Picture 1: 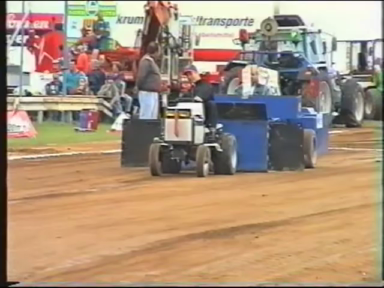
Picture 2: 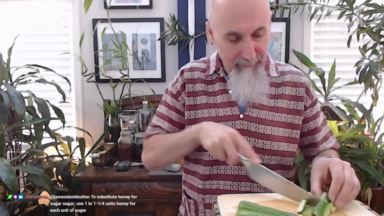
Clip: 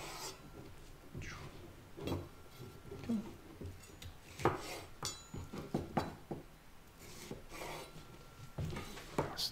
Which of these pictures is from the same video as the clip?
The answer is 2